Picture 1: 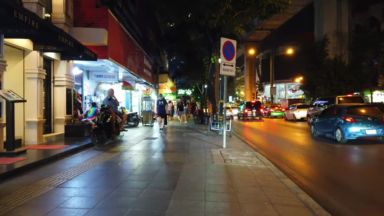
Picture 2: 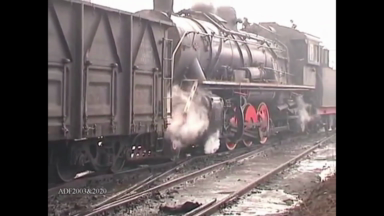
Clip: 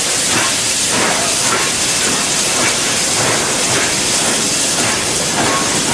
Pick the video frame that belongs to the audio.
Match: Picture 2